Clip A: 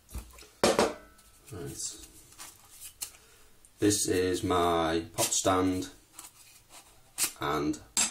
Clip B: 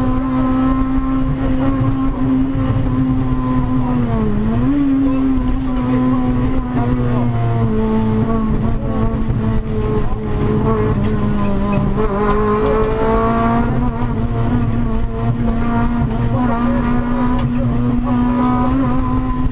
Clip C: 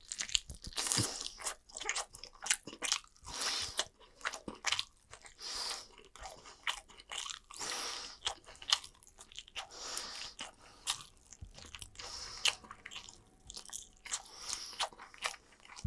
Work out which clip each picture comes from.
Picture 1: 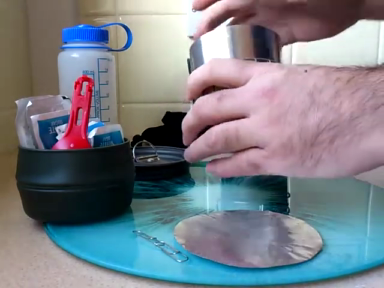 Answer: A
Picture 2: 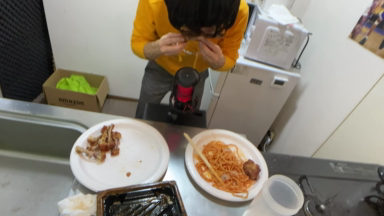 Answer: C